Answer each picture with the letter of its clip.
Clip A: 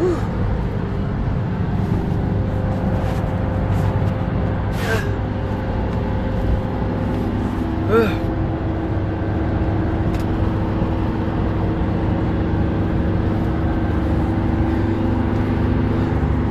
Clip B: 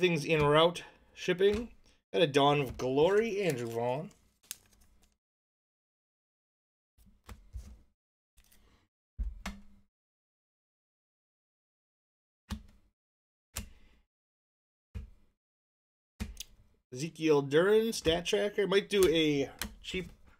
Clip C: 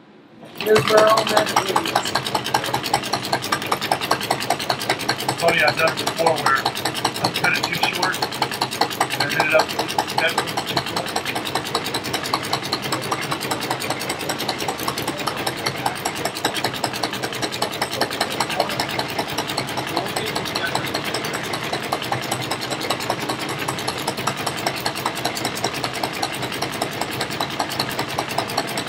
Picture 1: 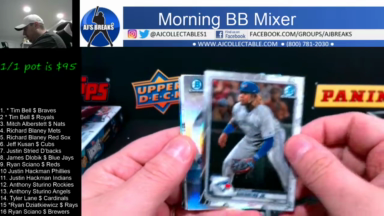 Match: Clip B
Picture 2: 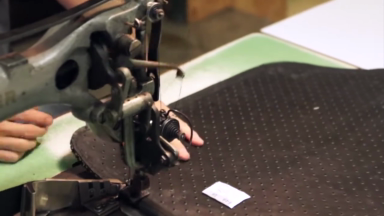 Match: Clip C